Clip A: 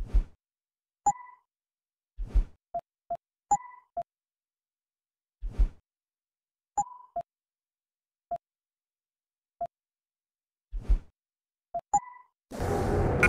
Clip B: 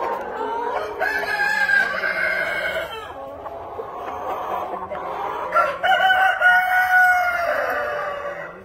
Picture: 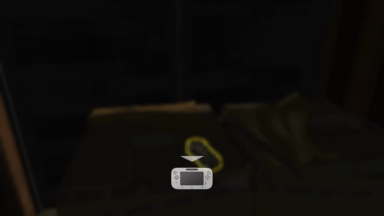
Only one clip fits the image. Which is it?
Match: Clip A